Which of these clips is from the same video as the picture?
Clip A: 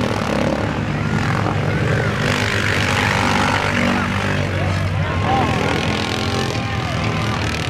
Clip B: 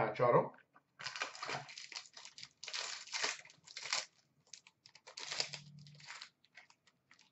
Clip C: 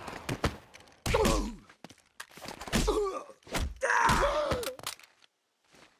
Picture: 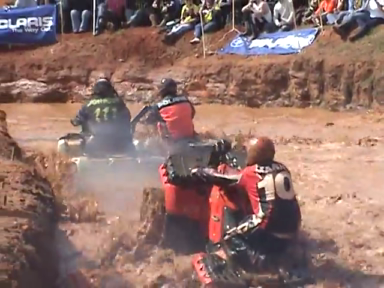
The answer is A